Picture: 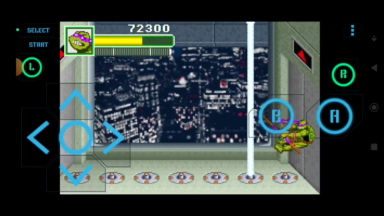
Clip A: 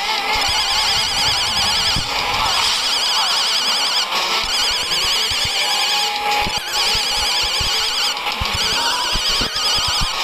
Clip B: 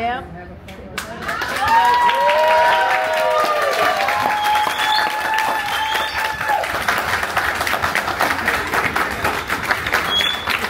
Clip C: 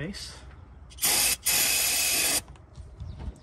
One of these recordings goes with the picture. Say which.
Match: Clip A